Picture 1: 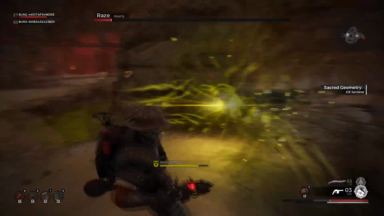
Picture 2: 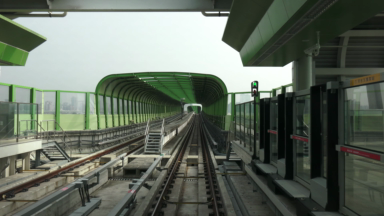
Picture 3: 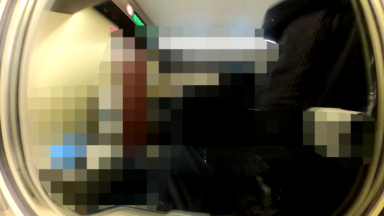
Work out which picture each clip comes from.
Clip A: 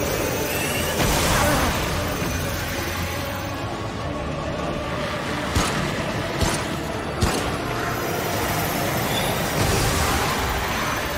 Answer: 1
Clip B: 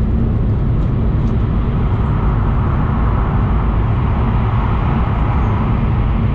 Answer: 3